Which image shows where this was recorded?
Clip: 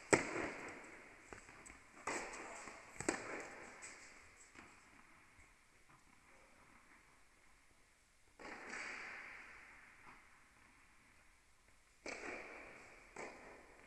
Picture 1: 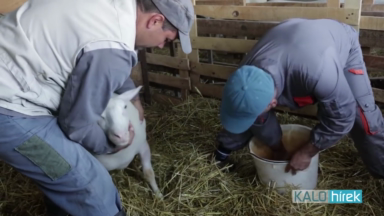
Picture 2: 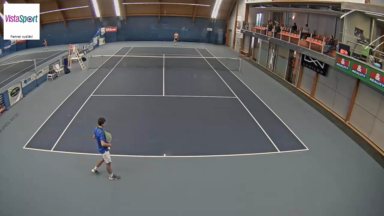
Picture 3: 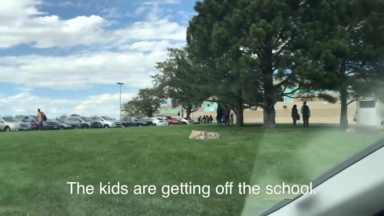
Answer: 2